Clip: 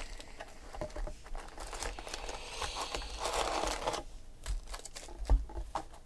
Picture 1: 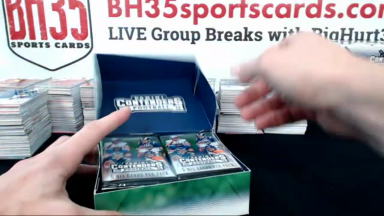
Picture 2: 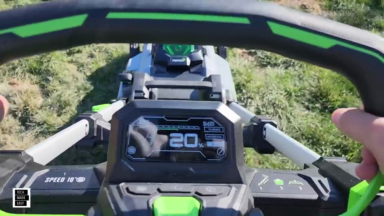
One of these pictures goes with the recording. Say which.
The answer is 1